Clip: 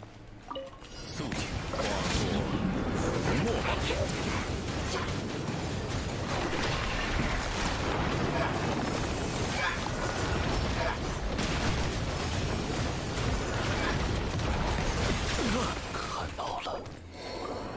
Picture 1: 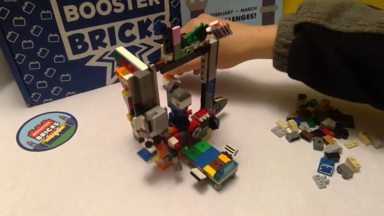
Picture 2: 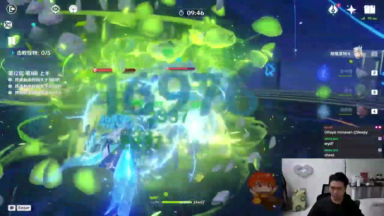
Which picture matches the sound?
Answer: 2